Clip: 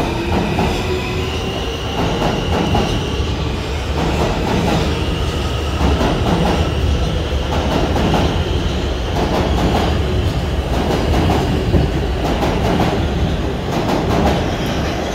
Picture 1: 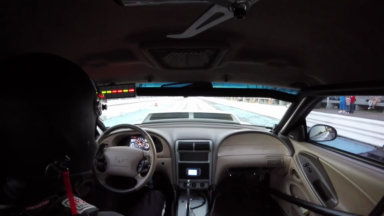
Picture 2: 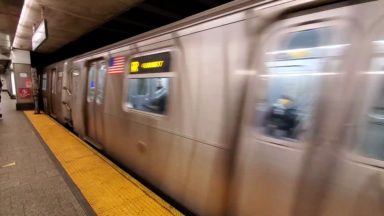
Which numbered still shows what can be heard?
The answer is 2